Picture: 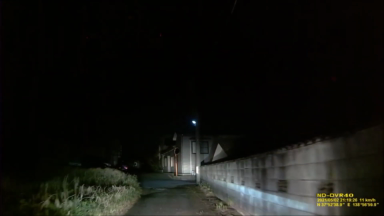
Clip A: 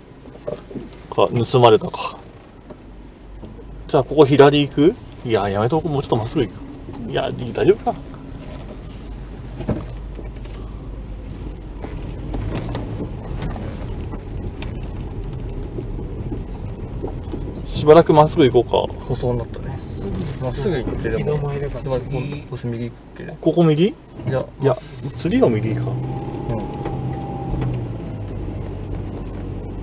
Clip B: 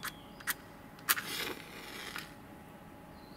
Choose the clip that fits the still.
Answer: A